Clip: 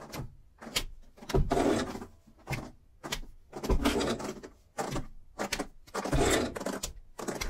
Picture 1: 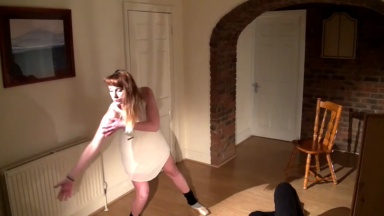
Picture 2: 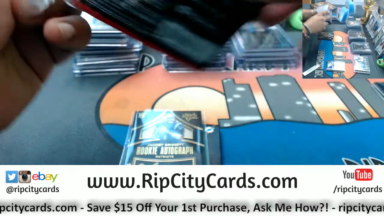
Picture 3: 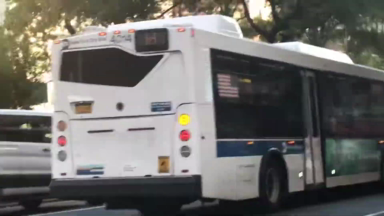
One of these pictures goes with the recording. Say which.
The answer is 1